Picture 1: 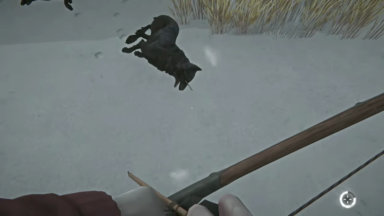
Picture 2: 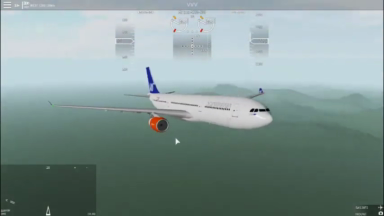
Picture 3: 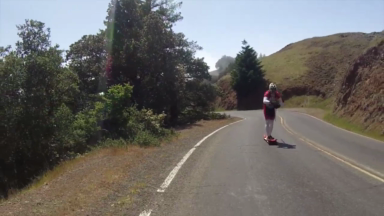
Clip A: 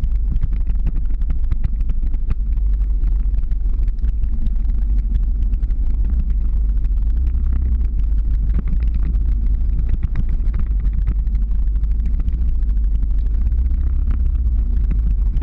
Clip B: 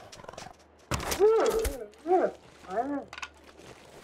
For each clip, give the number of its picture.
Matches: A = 3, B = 1